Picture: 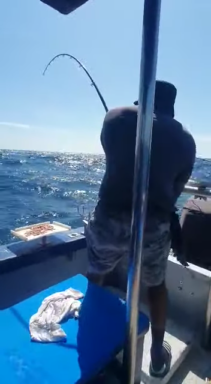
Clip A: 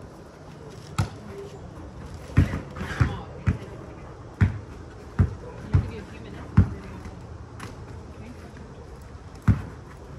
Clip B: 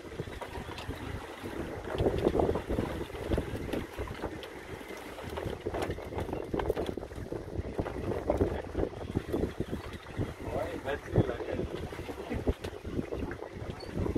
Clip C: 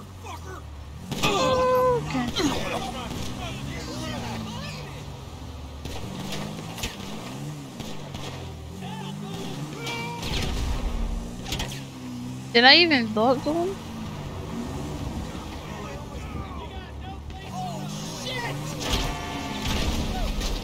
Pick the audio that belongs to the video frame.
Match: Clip B